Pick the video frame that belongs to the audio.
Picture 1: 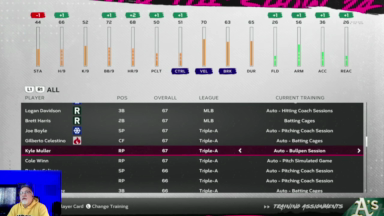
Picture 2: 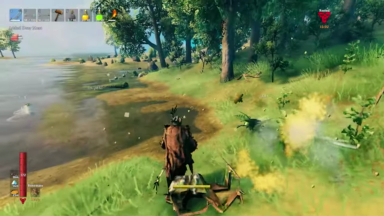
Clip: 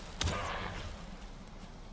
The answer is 2